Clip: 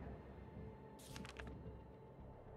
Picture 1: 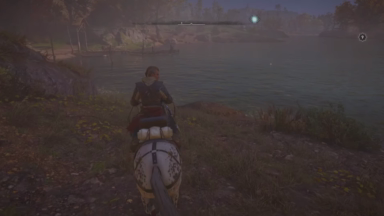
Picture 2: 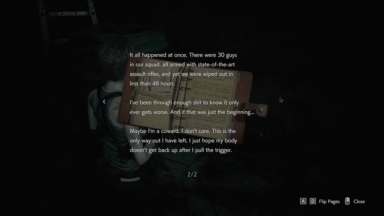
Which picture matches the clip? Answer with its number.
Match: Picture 2